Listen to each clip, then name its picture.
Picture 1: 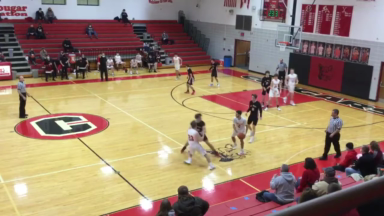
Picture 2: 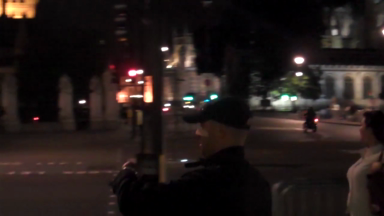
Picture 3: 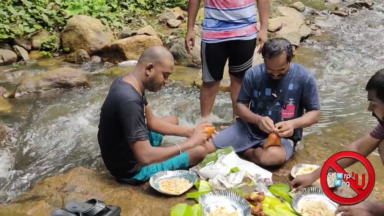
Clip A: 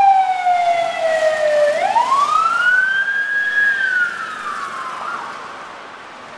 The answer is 2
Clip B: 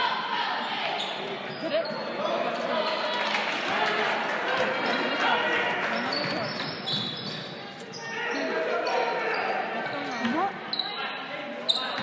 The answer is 1